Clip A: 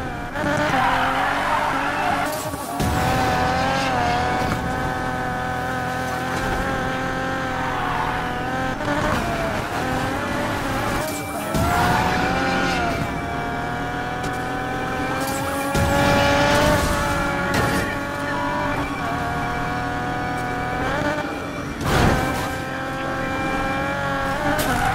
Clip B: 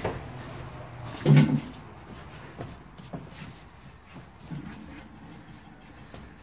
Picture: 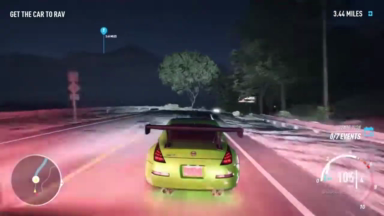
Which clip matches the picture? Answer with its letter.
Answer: A